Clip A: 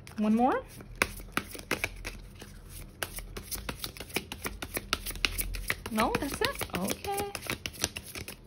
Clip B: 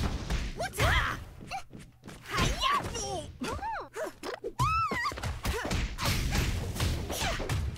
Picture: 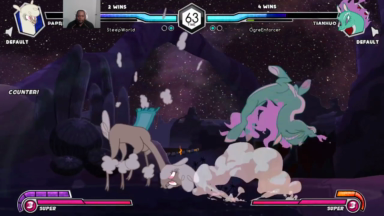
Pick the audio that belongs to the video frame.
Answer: B